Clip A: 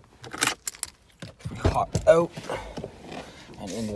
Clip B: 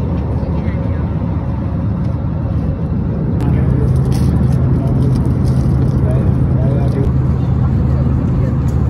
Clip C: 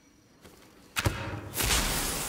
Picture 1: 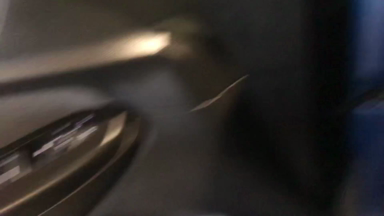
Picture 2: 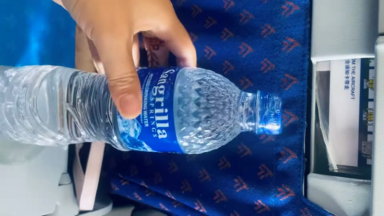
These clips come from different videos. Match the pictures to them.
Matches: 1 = A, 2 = B